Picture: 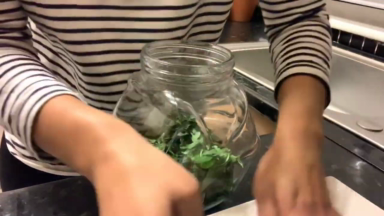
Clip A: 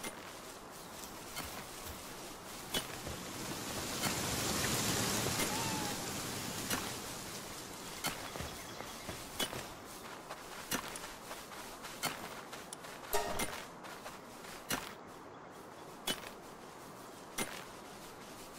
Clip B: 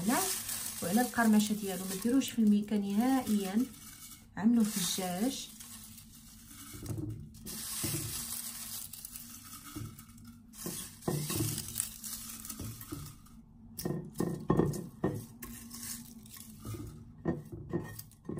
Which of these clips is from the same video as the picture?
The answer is B